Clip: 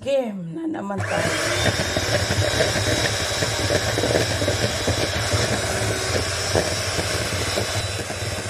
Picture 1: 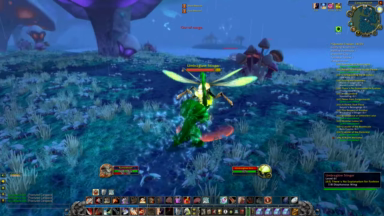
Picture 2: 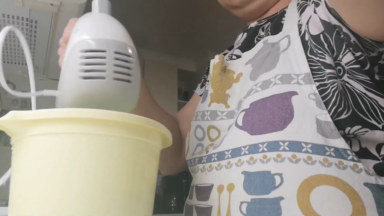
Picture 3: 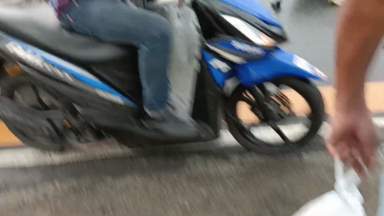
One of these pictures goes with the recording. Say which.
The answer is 2